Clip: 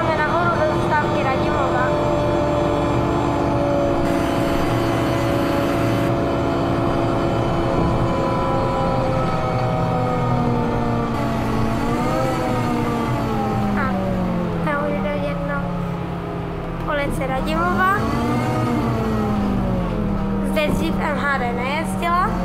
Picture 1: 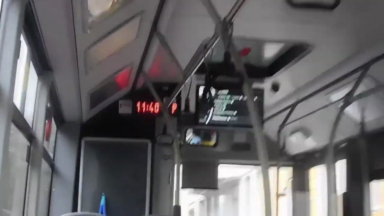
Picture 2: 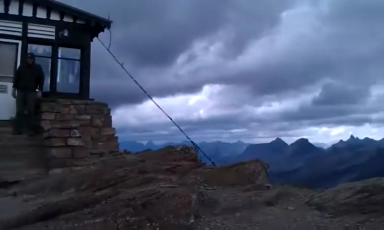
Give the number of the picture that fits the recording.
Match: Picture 1